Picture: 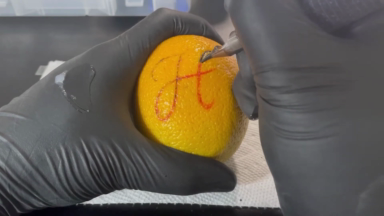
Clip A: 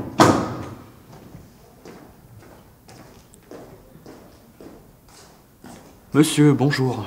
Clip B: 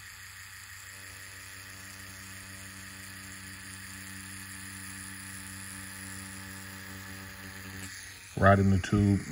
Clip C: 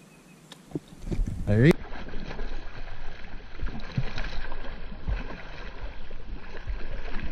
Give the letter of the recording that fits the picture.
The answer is B